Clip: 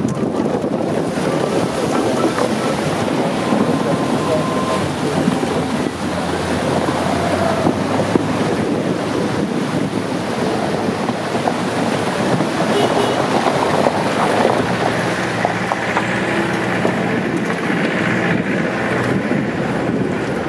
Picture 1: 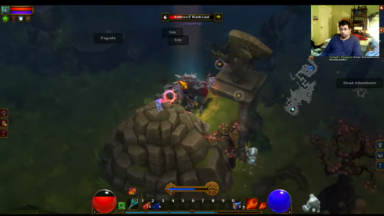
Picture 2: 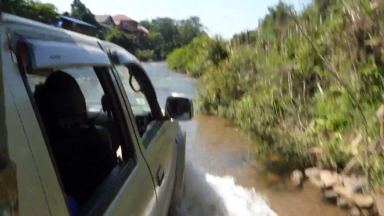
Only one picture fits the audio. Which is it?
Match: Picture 2